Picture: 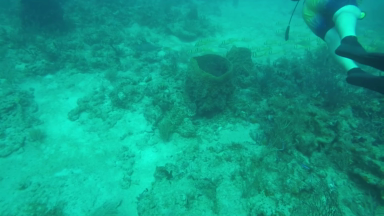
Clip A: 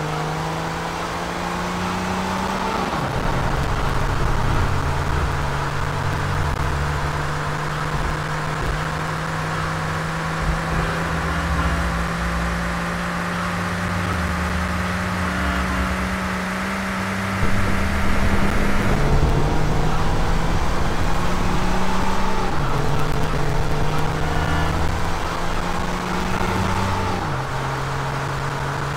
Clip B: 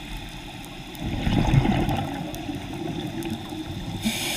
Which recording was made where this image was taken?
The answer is B